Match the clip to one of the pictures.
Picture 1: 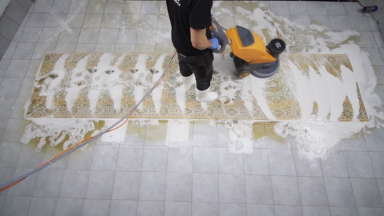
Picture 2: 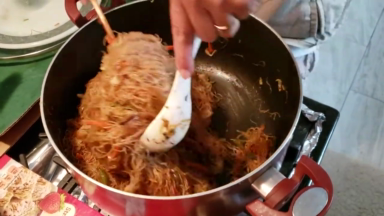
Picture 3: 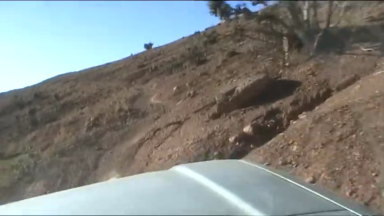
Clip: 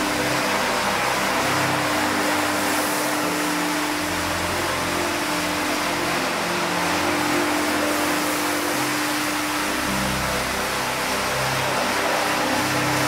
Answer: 1